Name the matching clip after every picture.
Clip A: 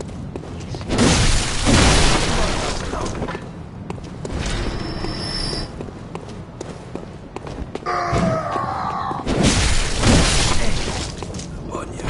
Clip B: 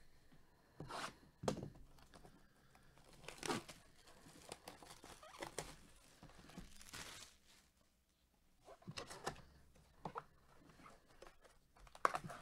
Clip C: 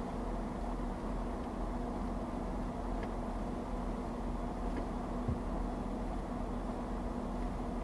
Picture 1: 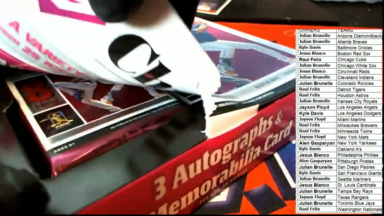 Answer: B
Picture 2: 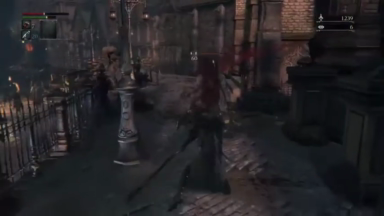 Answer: A